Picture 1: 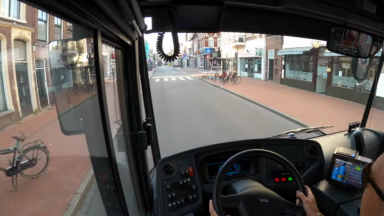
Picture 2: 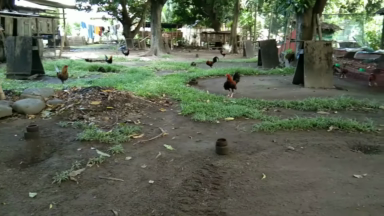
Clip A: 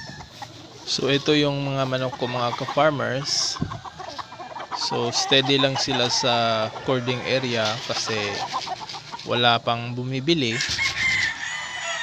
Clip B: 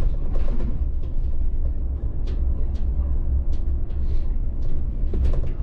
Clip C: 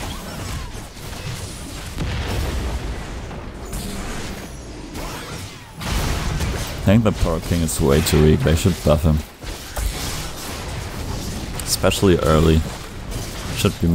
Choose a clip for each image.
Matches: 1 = B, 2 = A